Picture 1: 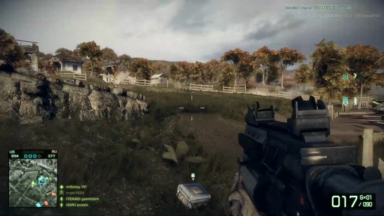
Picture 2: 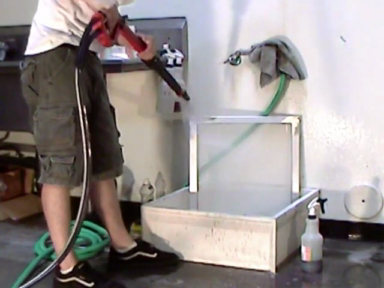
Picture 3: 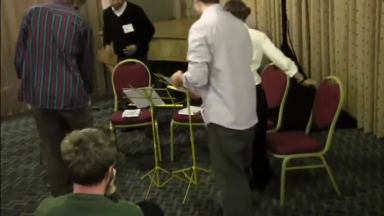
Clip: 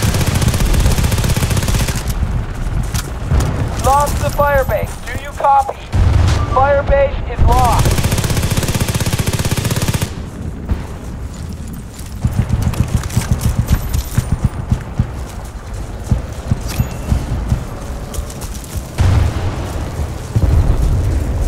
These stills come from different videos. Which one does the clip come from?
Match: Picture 1